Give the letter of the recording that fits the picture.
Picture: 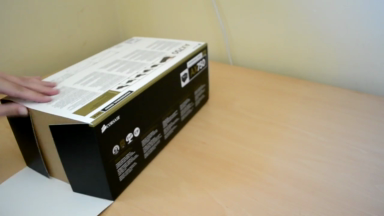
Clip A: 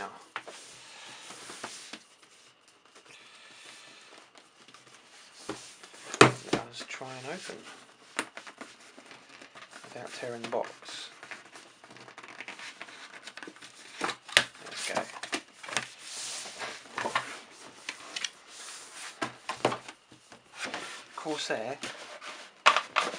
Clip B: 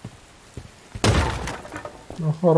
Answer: A